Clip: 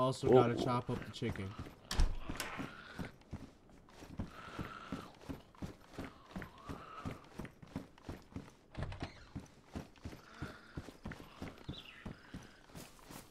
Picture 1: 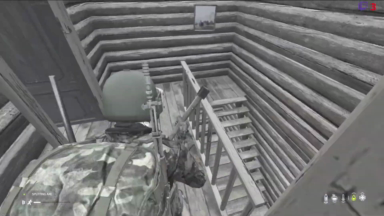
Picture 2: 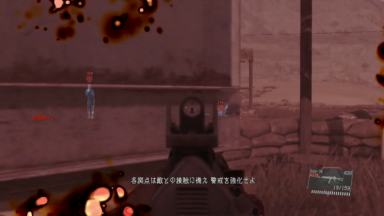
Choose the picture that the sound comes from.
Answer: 1